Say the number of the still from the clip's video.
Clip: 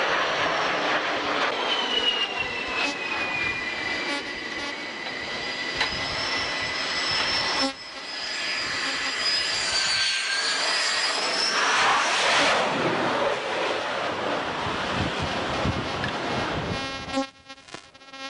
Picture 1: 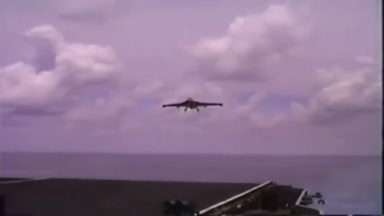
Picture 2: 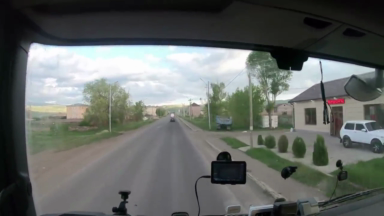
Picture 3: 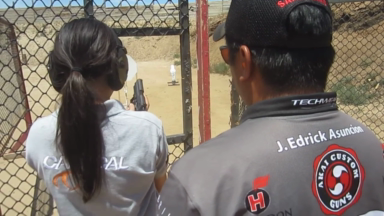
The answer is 1